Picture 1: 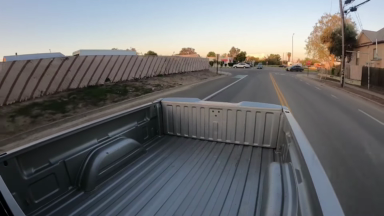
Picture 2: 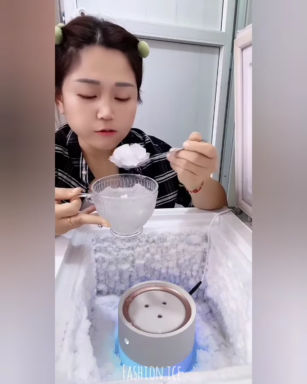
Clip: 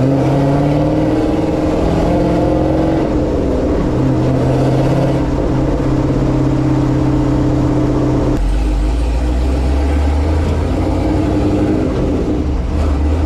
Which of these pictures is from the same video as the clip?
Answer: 1